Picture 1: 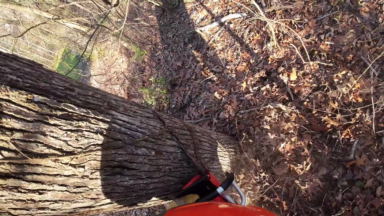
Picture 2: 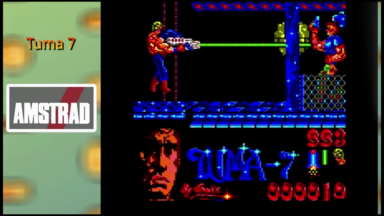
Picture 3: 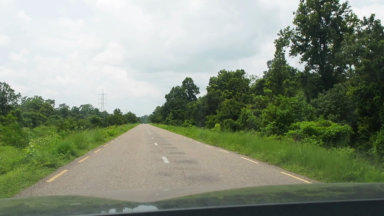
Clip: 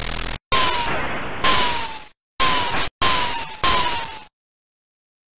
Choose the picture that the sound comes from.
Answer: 2